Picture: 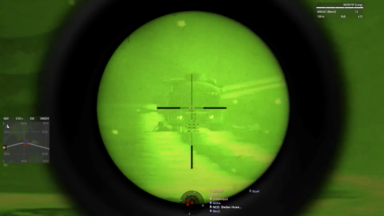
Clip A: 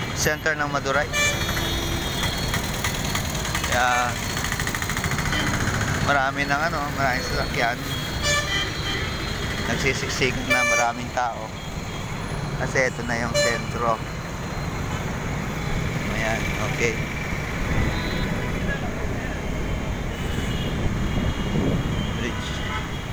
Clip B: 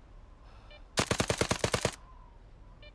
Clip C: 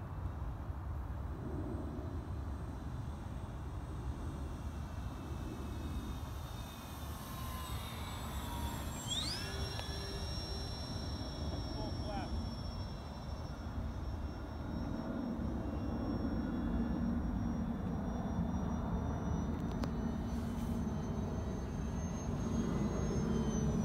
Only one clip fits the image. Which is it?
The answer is B